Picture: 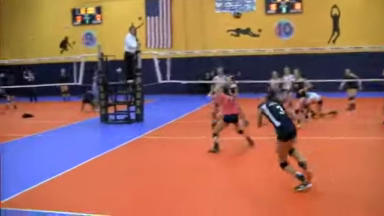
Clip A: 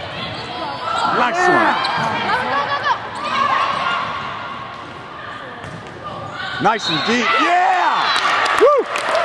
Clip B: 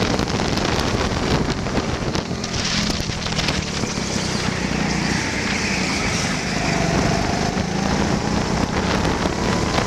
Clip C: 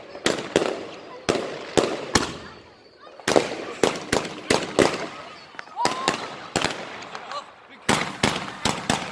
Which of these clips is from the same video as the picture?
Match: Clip A